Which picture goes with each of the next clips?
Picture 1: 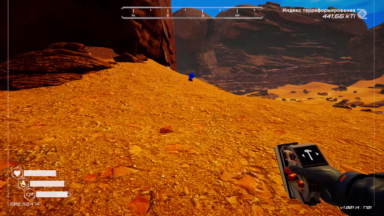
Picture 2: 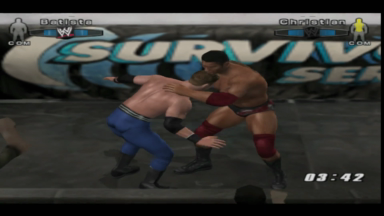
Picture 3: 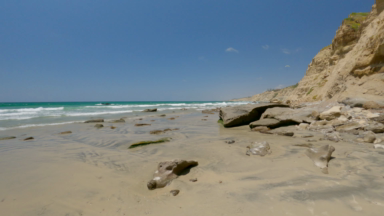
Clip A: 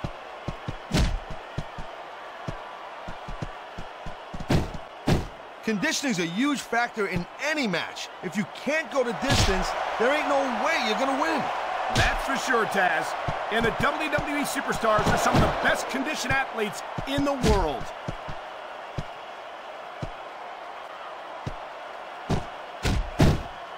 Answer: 2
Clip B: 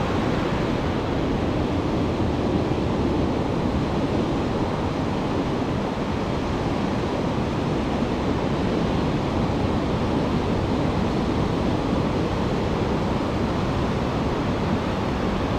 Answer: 3